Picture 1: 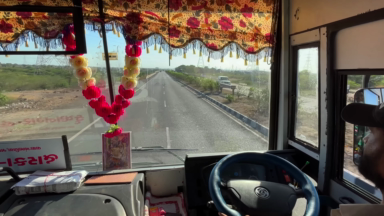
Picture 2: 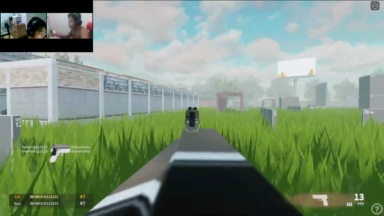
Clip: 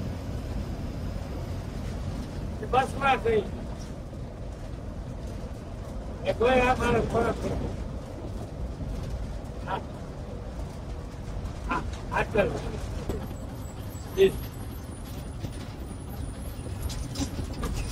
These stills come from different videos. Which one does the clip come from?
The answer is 1